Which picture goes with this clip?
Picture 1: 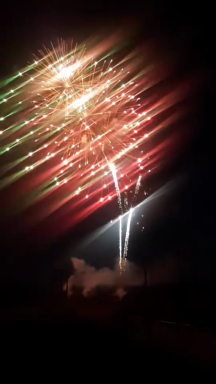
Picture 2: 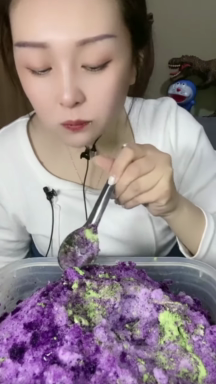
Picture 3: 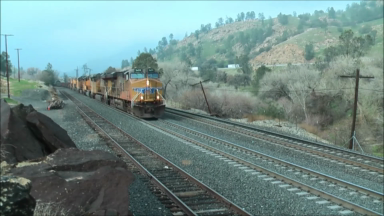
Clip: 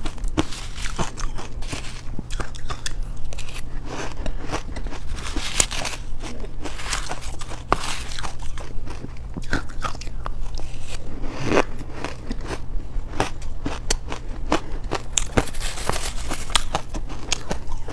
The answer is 2